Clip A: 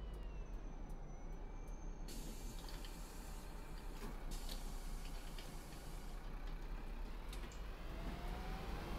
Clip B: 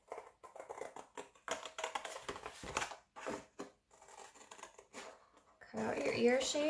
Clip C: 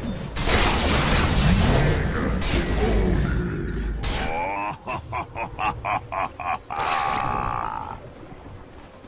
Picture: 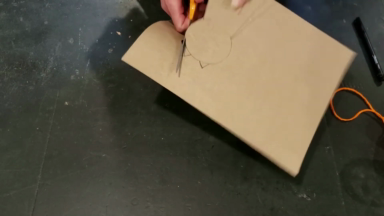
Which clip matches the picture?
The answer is B